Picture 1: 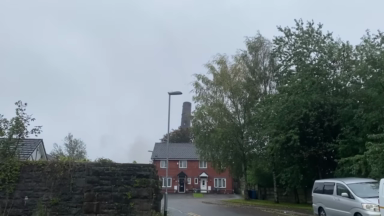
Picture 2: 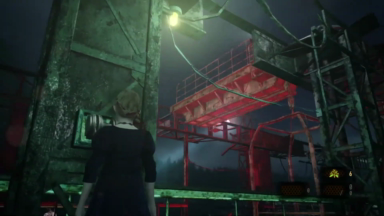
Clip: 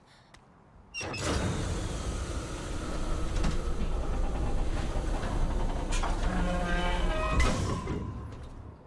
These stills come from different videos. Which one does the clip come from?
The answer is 2